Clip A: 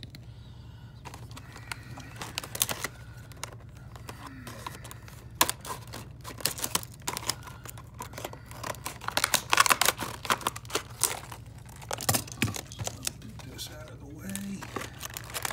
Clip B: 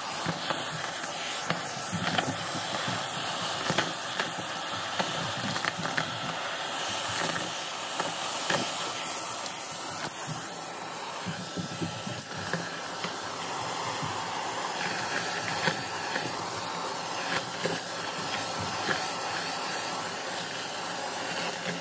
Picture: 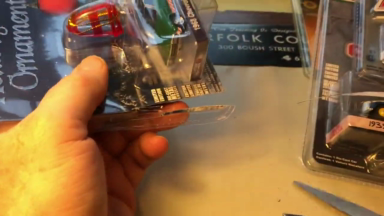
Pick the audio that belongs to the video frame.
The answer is A